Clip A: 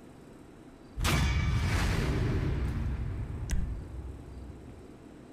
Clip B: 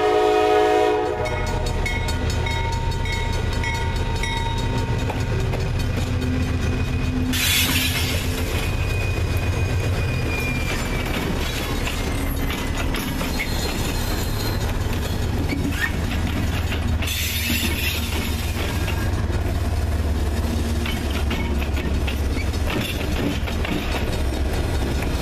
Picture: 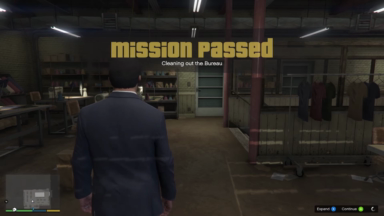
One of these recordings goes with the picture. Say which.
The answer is A